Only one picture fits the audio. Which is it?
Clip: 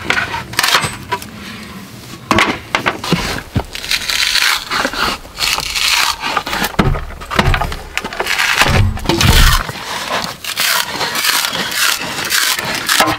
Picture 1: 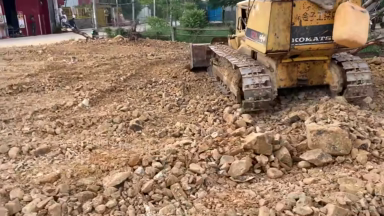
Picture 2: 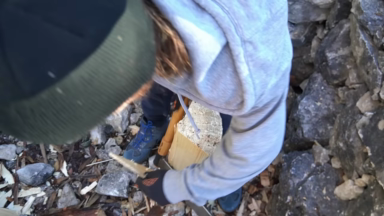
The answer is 2